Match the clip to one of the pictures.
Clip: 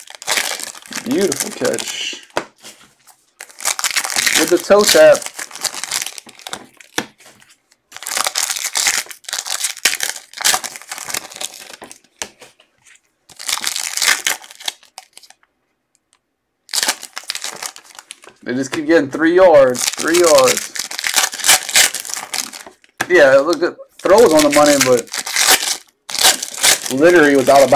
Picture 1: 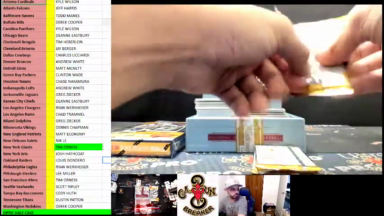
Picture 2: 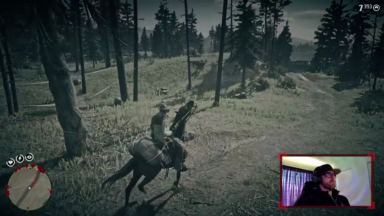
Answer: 1